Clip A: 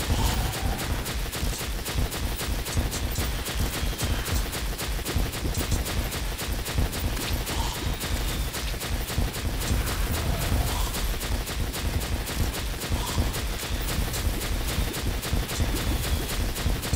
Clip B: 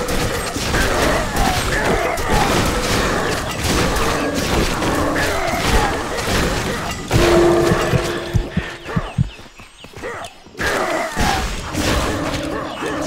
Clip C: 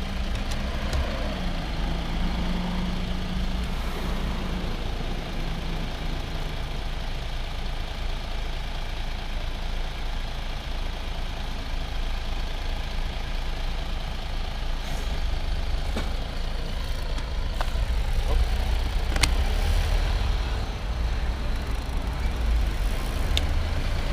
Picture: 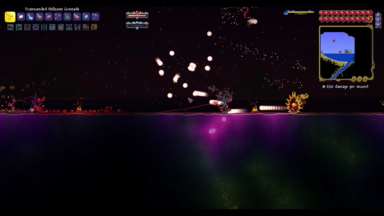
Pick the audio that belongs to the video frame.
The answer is A